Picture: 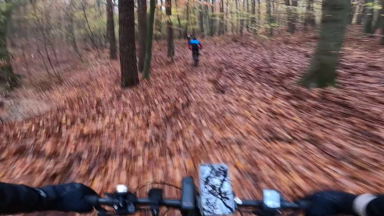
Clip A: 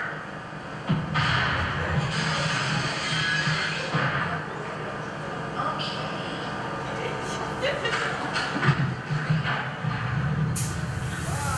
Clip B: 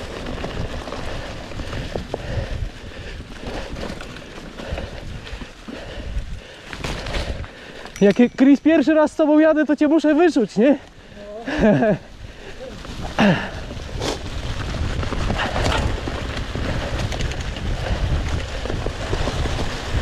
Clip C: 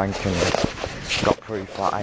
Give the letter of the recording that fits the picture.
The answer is B